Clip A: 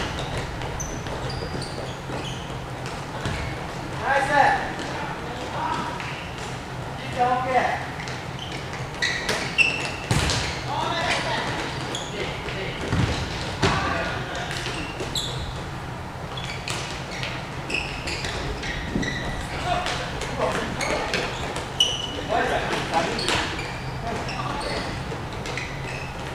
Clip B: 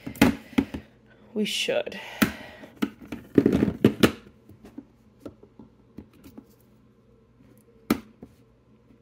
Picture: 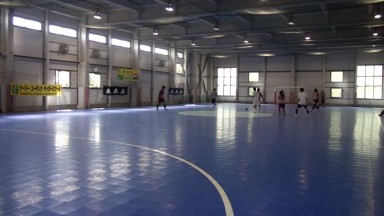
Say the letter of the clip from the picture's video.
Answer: A